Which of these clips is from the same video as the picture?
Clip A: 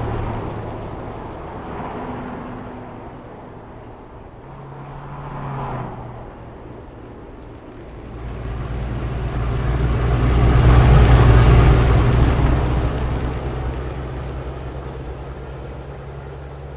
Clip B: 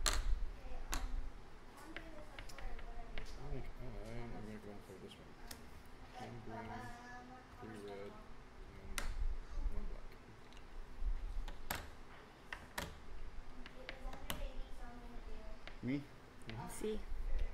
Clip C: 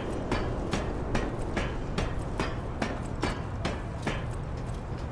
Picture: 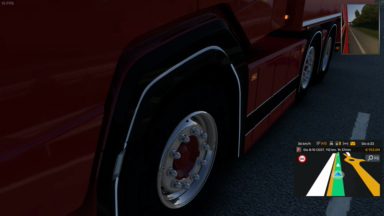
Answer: A